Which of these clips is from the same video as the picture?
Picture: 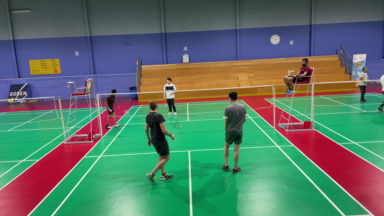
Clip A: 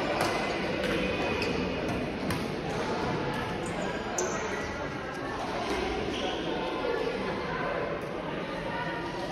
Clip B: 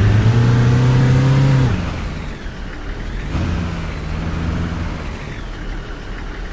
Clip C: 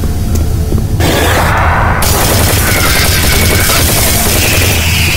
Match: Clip A